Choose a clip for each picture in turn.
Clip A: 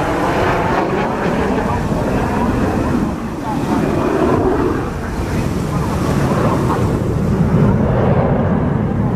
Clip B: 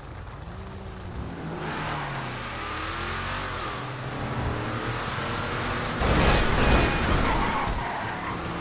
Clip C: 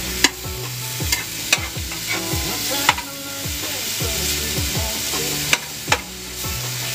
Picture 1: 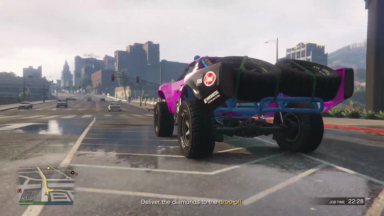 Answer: B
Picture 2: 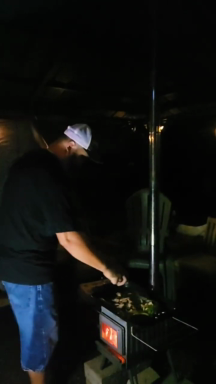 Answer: C